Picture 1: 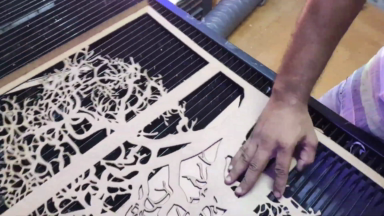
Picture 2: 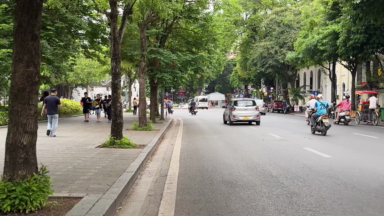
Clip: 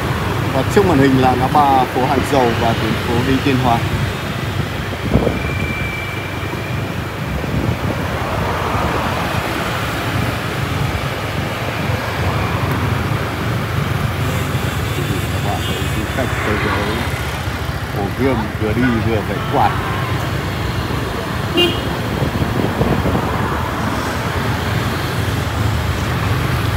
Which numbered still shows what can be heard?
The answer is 2